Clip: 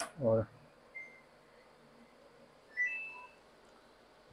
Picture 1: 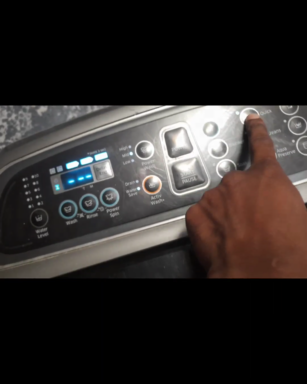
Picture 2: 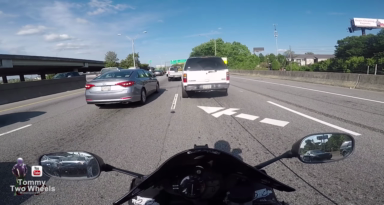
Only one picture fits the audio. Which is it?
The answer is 1